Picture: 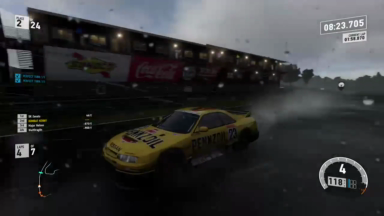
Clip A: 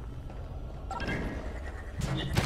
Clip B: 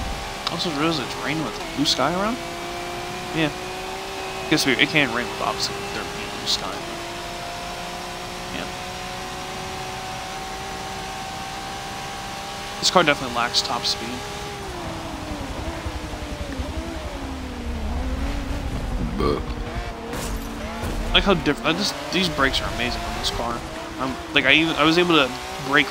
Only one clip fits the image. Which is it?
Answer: B